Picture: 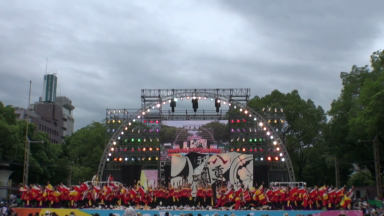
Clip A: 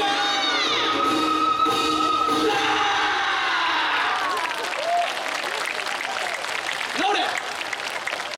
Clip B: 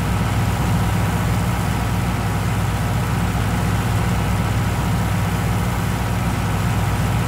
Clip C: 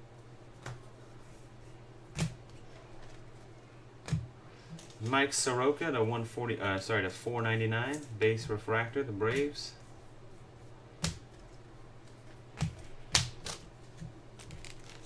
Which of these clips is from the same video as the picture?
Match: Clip A